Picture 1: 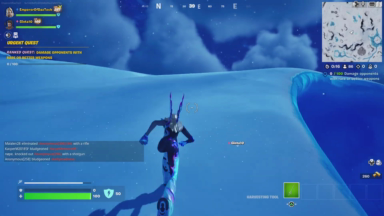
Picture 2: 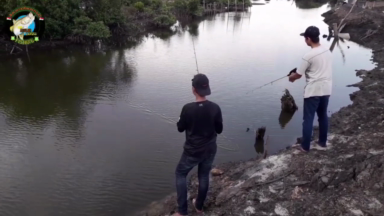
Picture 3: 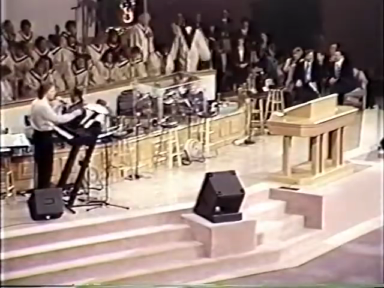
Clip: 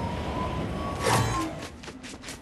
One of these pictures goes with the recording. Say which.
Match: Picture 1